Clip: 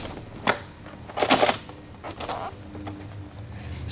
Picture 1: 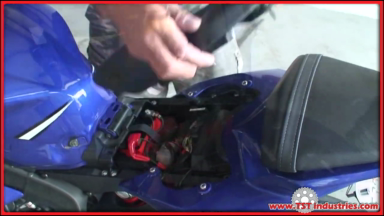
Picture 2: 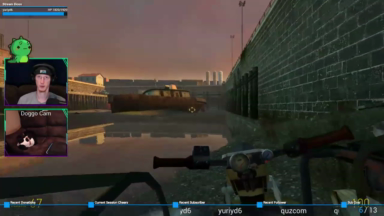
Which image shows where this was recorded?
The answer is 1